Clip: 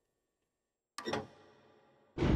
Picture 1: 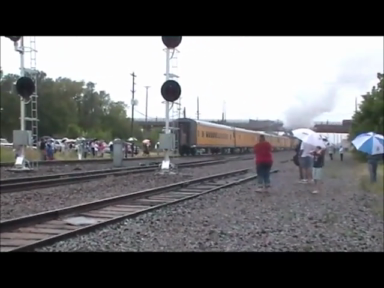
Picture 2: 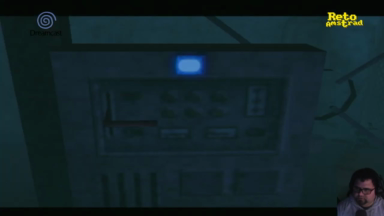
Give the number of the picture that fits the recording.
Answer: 2